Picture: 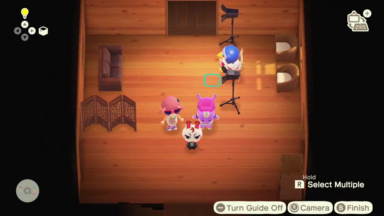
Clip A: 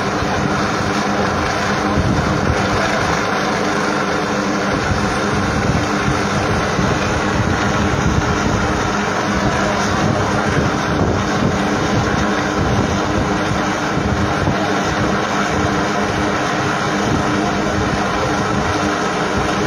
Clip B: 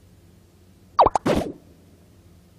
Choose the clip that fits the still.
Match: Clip B